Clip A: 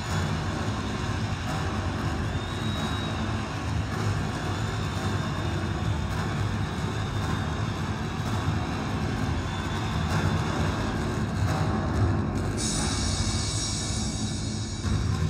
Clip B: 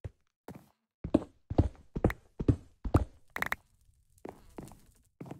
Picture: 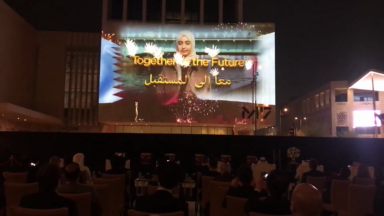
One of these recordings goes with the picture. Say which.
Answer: A